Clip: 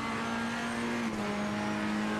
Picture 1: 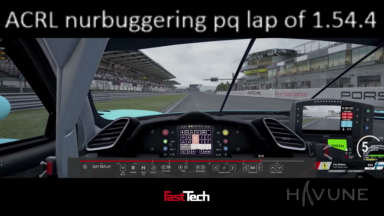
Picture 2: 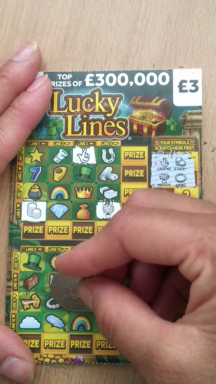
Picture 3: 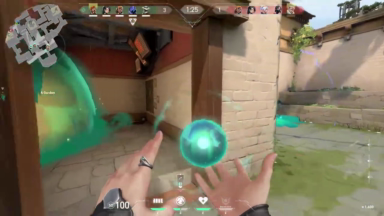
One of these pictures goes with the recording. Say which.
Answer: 1